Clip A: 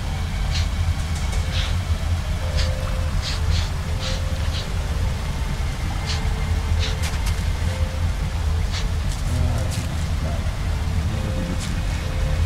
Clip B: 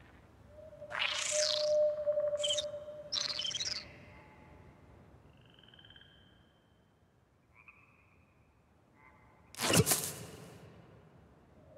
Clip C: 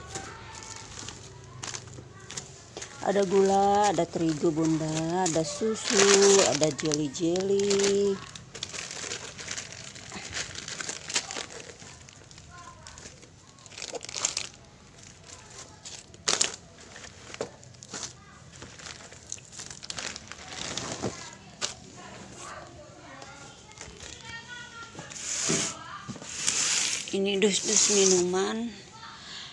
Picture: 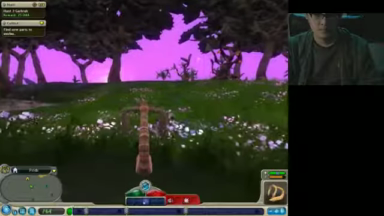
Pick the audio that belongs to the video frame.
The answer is B